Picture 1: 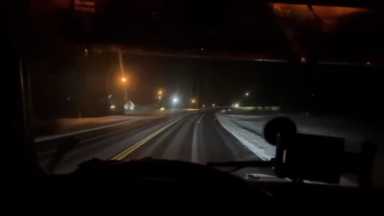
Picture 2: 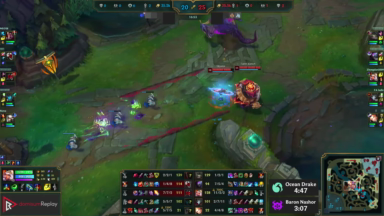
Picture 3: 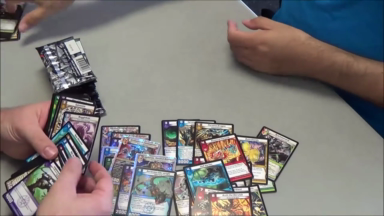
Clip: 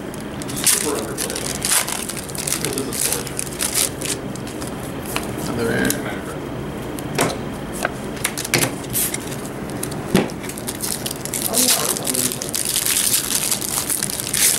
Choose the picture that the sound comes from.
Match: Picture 3